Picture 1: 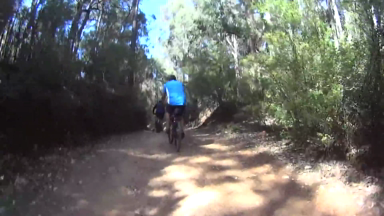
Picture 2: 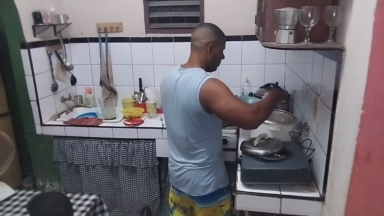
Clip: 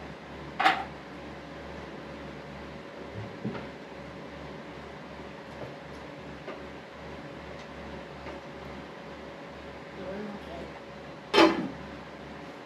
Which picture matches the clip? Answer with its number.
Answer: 2